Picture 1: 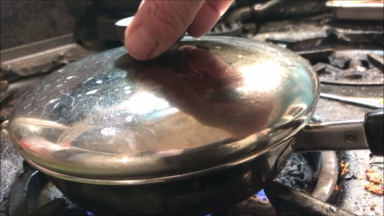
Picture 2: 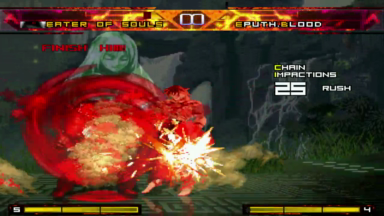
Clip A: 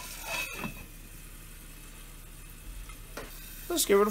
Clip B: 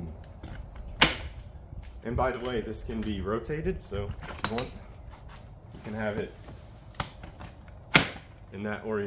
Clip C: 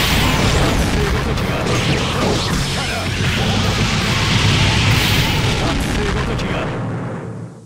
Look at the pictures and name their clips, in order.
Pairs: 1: A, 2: C